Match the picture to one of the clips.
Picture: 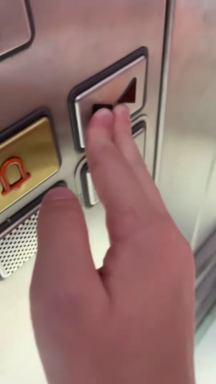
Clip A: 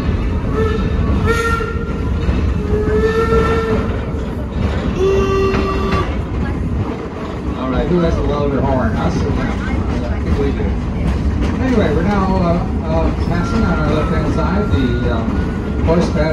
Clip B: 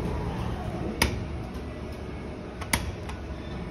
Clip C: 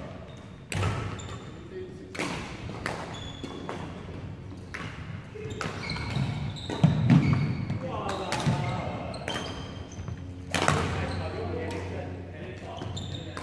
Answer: B